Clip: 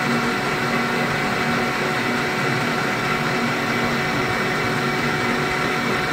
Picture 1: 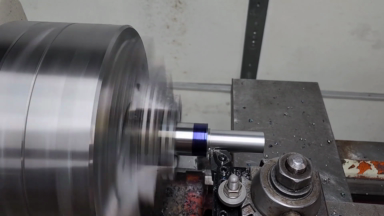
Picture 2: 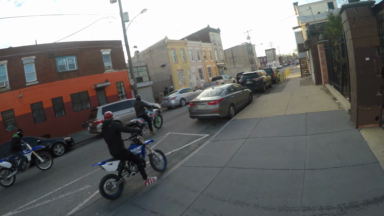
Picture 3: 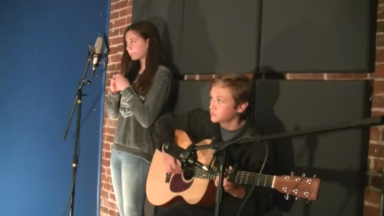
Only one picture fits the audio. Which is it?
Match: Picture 1